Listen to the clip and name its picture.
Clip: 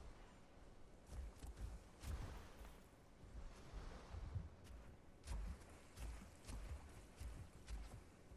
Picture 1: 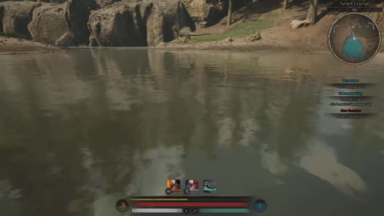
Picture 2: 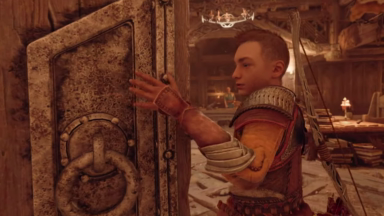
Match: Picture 1